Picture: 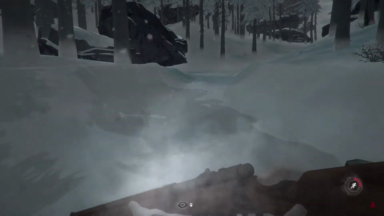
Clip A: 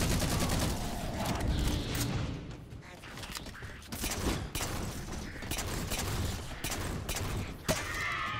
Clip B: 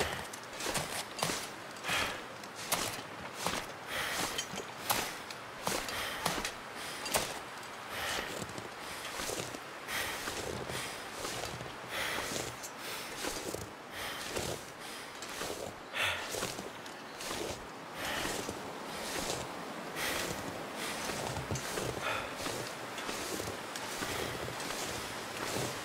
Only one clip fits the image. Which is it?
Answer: B